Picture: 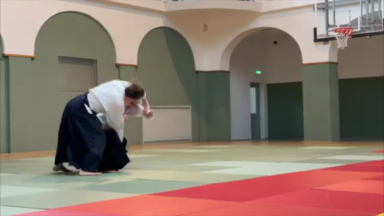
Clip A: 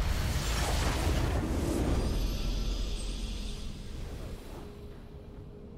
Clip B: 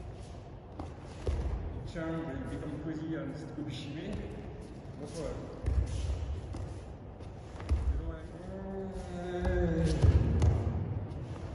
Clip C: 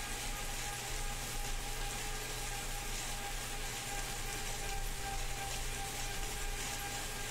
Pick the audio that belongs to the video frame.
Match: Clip B